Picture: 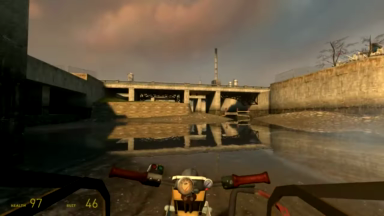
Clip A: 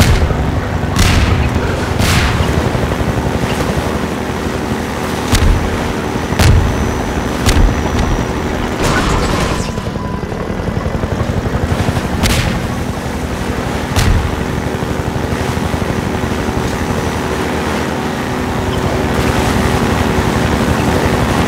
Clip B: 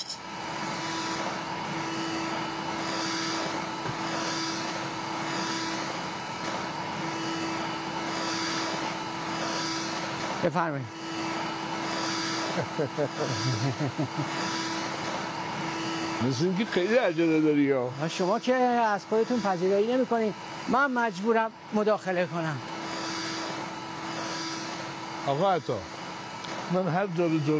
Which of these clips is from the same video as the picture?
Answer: A